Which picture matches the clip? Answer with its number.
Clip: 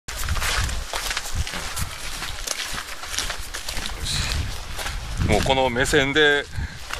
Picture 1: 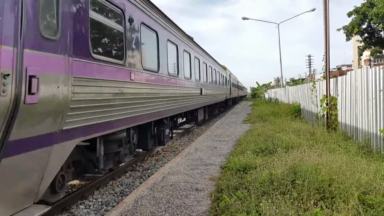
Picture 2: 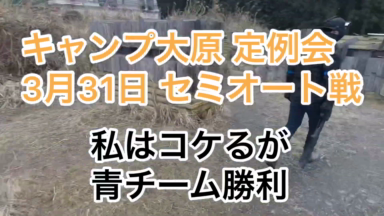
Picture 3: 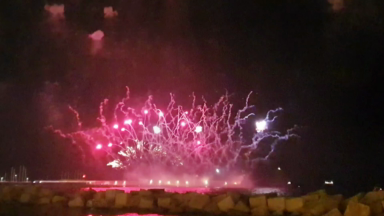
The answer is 2